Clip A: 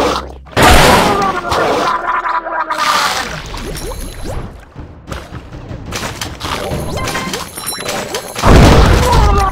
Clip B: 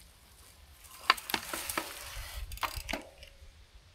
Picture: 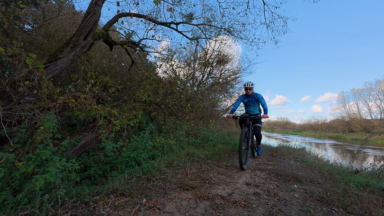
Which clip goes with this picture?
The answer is B